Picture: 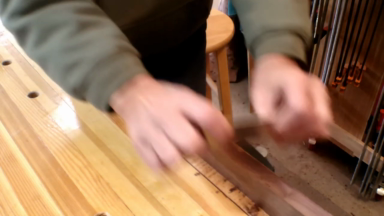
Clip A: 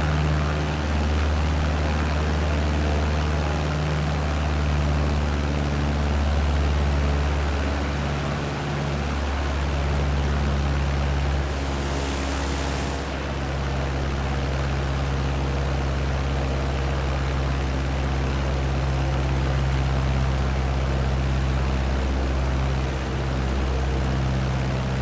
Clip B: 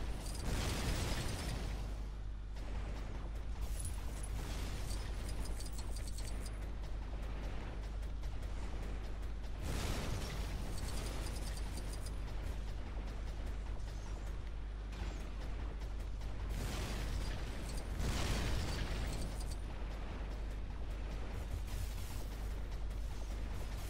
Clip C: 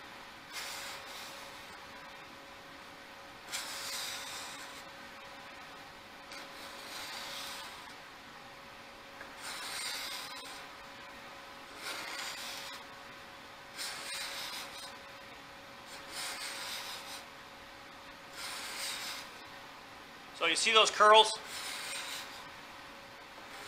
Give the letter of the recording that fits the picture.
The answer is C